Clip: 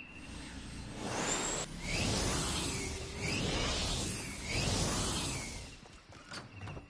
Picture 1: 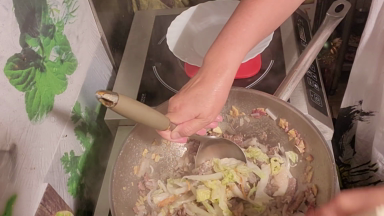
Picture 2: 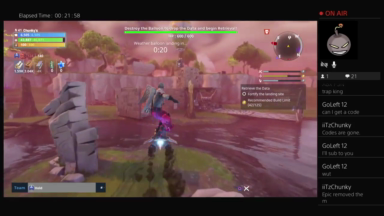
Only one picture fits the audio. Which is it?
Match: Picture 2